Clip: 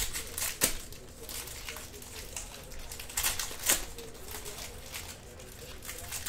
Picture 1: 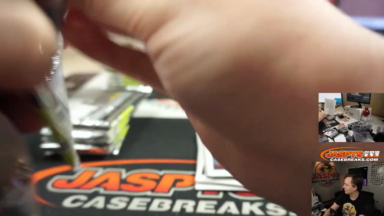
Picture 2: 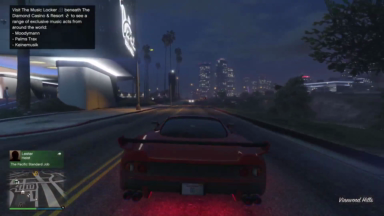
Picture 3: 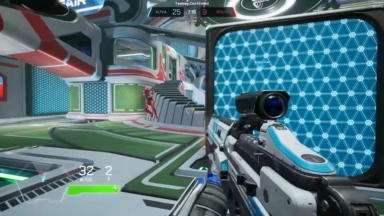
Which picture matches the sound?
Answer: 1